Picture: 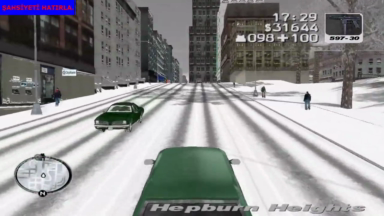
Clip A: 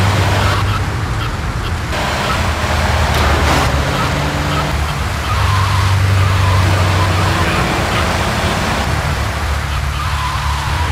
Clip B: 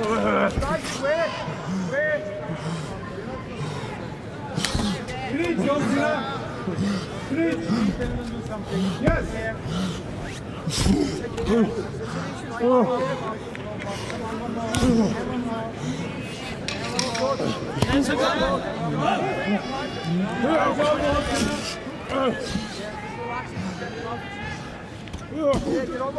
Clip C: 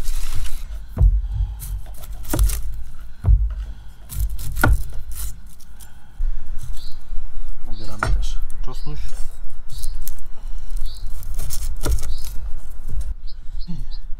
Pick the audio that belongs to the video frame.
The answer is A